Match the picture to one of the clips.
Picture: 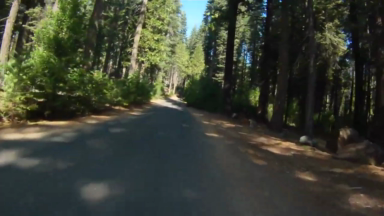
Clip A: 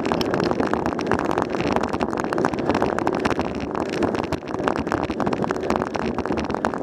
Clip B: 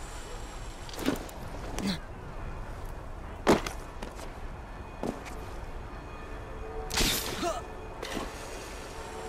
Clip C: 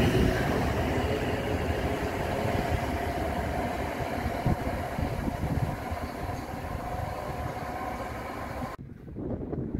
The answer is A